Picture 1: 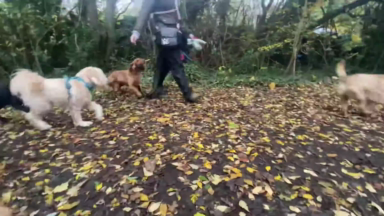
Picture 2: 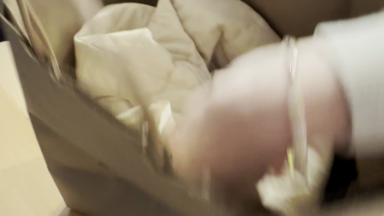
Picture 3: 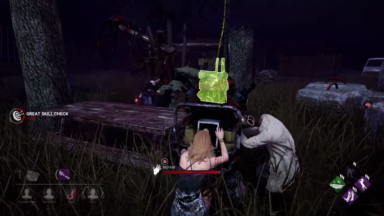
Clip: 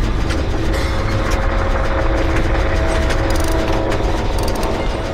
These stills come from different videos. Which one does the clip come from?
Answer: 3